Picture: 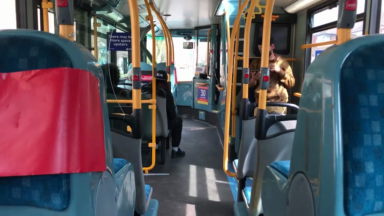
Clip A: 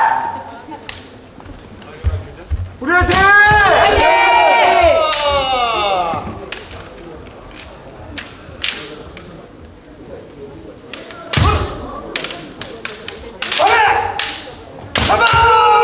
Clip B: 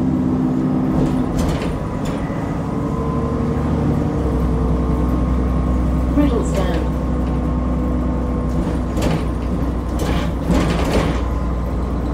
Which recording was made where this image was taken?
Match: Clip B